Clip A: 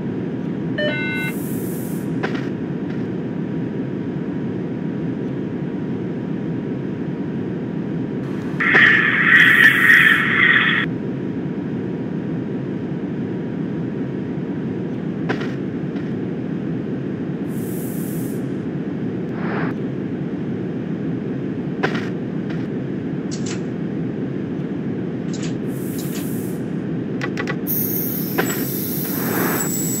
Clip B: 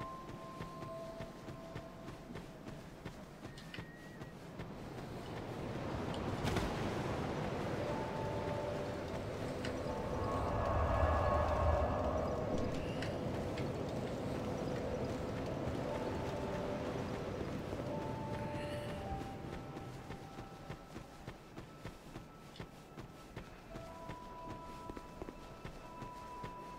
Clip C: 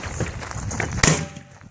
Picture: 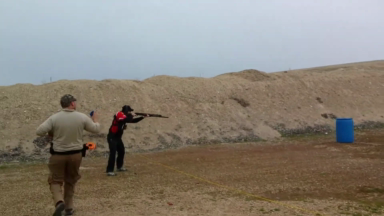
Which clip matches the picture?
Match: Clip C